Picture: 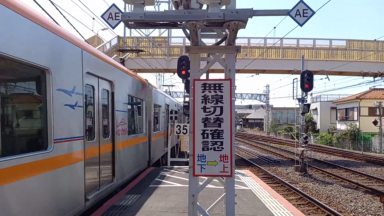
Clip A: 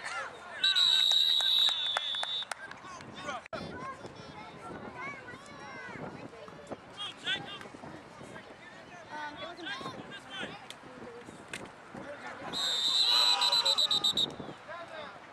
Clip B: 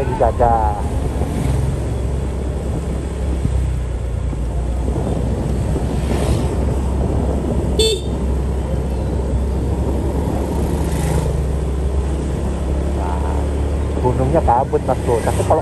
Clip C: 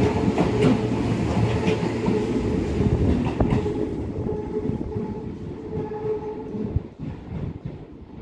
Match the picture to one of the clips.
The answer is C